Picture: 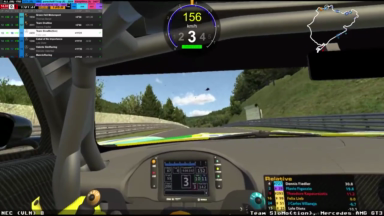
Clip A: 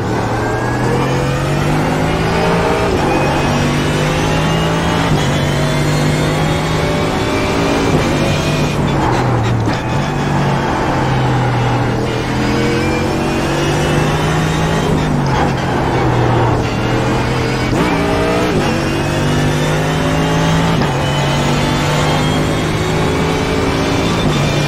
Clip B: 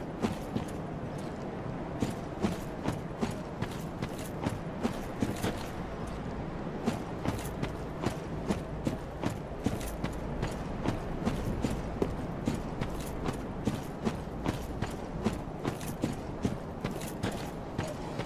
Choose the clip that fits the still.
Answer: A